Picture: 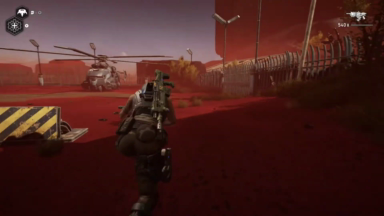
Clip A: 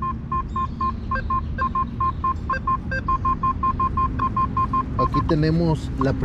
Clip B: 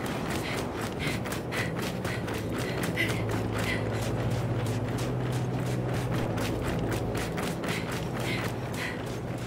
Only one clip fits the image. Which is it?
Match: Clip B